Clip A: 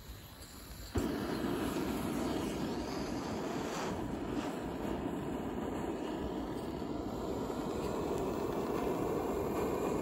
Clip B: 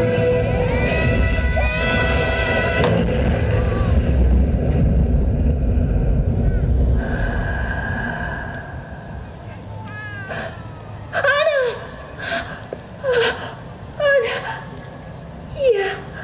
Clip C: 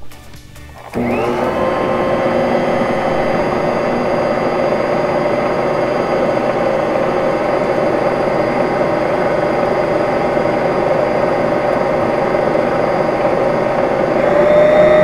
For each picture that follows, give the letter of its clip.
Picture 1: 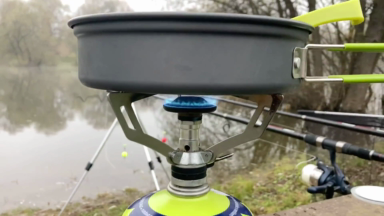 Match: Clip A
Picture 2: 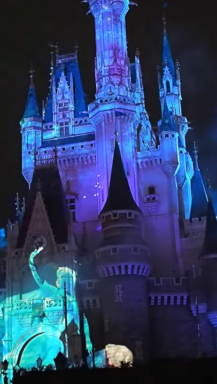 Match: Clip B